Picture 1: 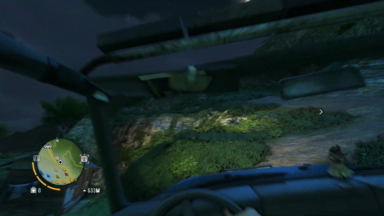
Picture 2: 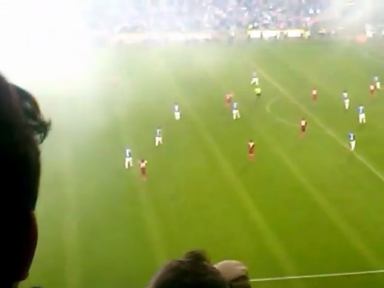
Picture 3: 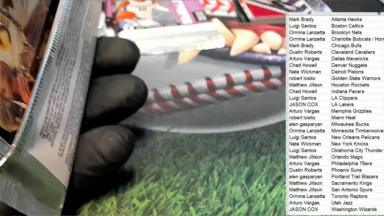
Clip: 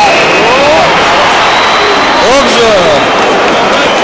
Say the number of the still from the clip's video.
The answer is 2